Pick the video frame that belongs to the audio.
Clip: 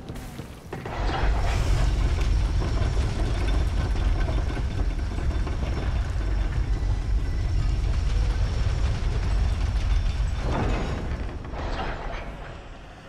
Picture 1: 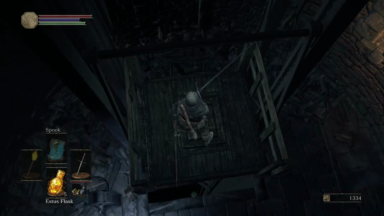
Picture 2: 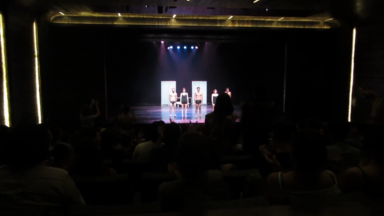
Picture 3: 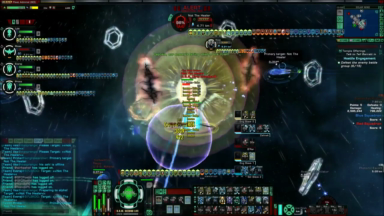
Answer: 1